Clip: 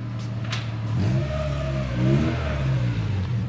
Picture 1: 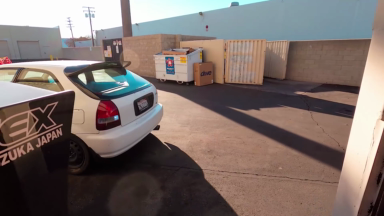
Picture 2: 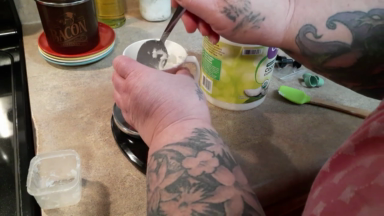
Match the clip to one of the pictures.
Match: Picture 1